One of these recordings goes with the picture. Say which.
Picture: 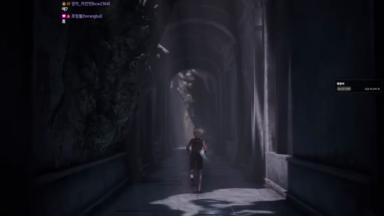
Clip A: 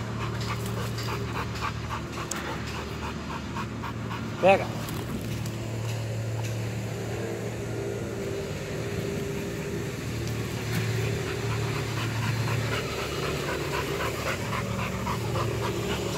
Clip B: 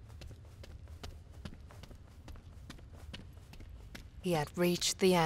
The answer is B